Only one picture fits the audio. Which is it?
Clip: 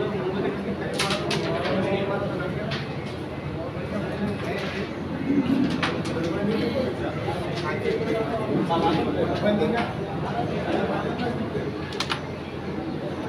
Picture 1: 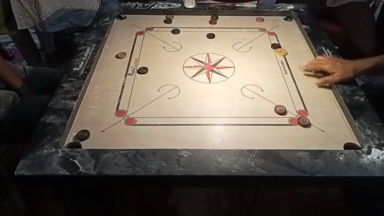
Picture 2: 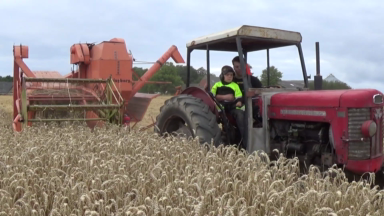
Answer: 1